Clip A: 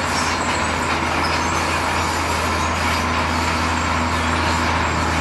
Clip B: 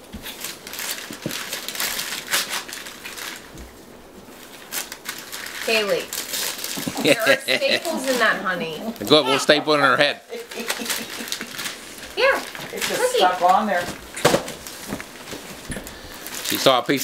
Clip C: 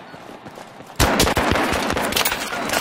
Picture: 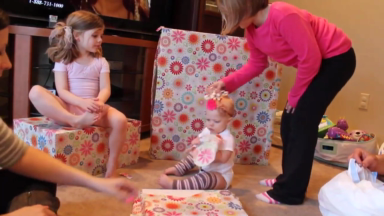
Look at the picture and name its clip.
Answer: B